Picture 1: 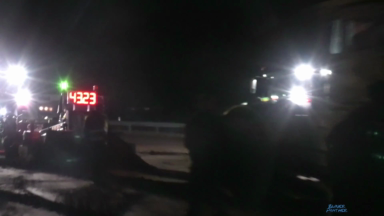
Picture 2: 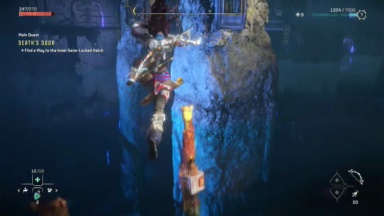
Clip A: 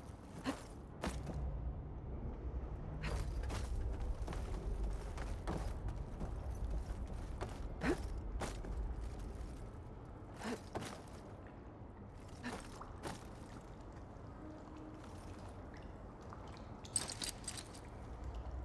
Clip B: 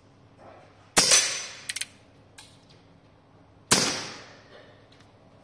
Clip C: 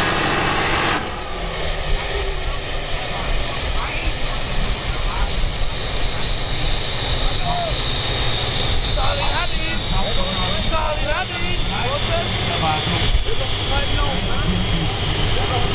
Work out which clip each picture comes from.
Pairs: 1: C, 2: A